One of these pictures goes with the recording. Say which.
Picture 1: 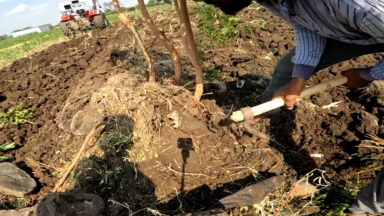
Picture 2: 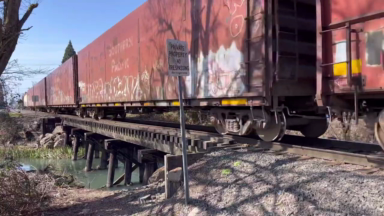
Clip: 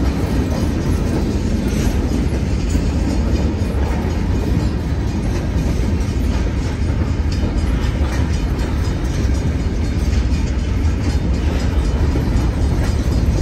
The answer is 2